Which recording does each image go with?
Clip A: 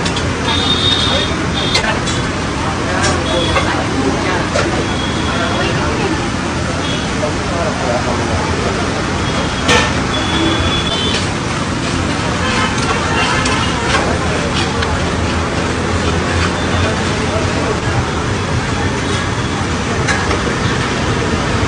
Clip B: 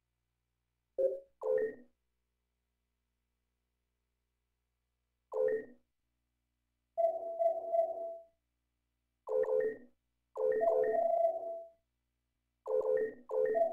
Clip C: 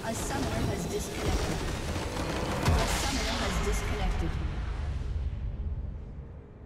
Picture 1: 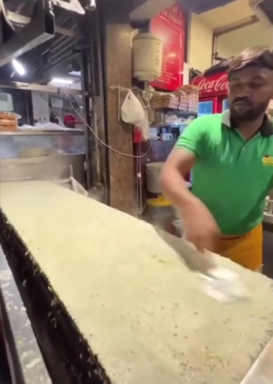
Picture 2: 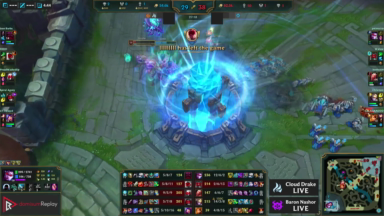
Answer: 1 A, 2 C